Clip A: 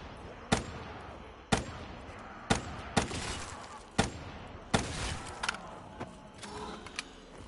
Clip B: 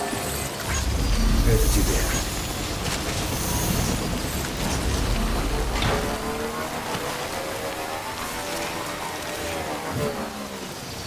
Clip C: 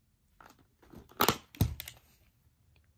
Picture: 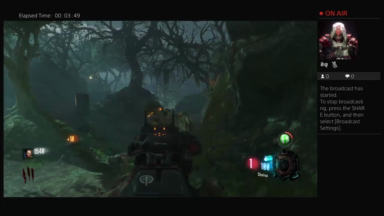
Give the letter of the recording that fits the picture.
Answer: A